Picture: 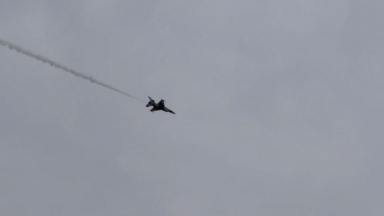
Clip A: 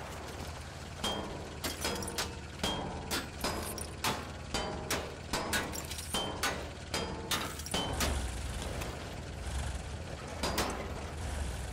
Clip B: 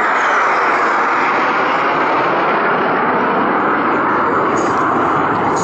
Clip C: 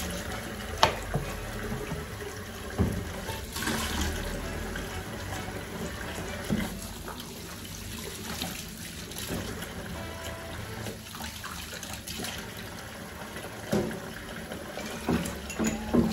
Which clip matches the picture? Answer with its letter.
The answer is B